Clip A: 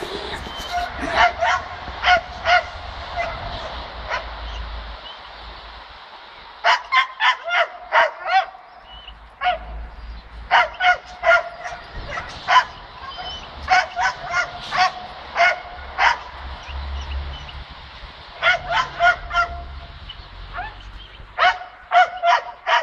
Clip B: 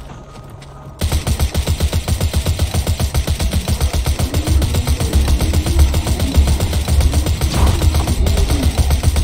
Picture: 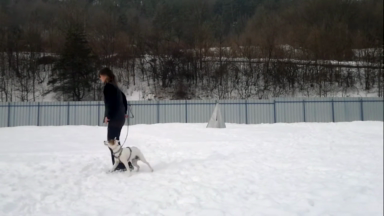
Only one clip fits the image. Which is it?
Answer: A